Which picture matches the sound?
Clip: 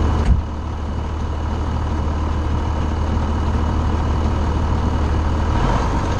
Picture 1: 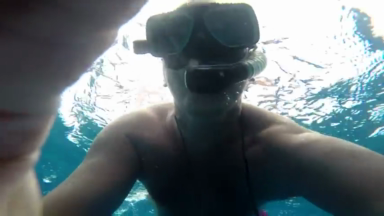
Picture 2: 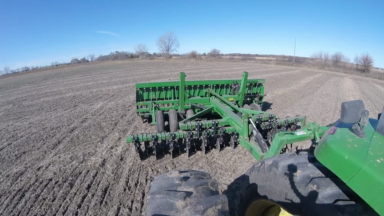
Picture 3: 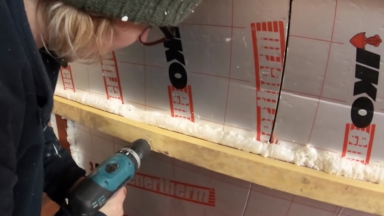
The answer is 2